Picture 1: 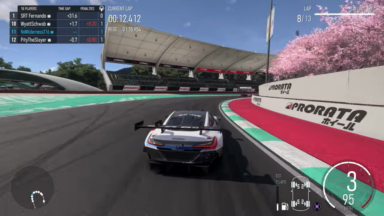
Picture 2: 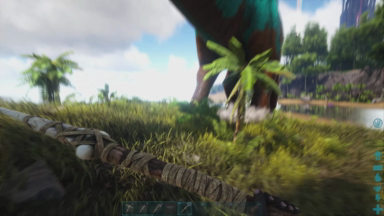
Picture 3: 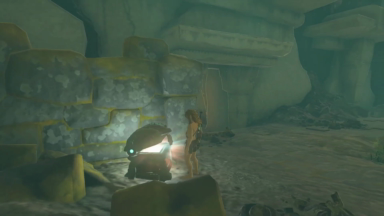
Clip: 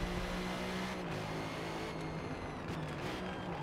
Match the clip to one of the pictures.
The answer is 1